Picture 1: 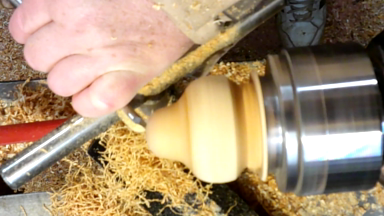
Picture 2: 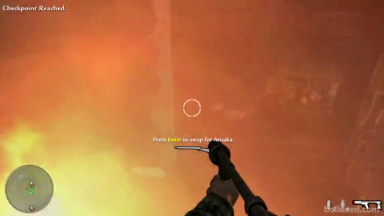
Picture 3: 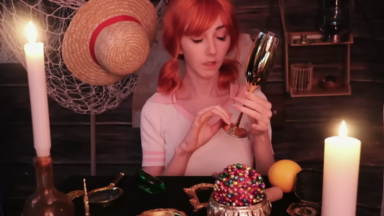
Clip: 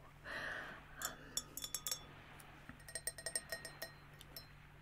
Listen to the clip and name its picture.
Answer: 3